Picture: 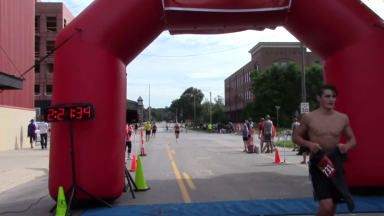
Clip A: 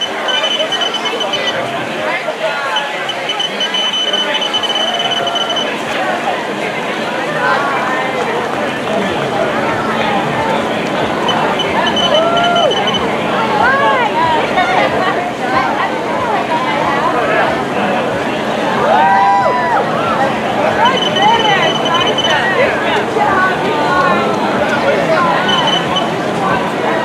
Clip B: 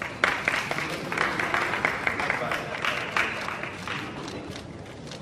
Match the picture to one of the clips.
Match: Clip A